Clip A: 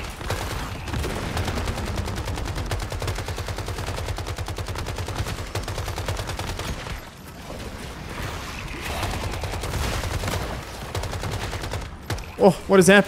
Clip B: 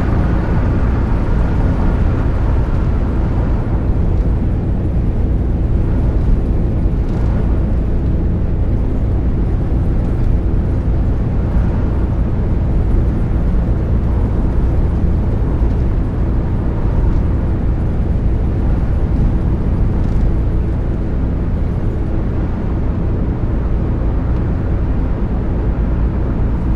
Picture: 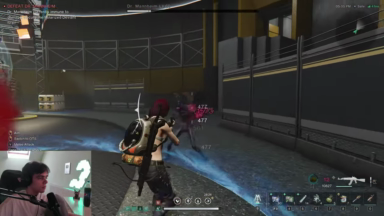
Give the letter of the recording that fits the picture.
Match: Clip A